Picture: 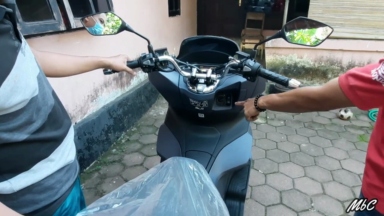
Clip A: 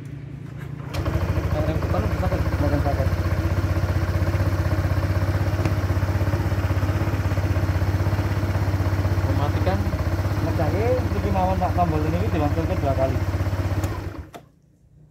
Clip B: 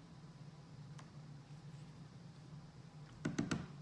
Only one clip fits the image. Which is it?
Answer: A